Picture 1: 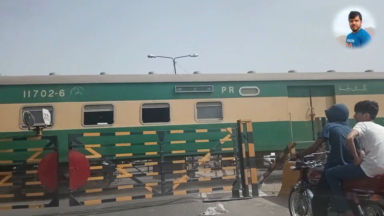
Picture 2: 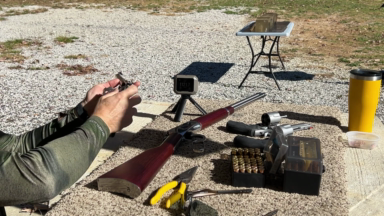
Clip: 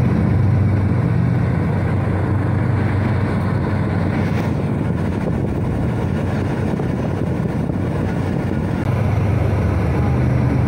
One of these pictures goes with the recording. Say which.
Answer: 1